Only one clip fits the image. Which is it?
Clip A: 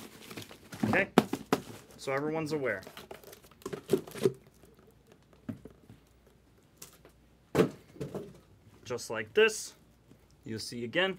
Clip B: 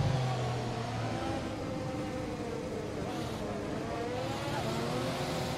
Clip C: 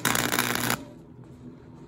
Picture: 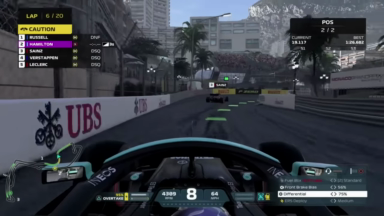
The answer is B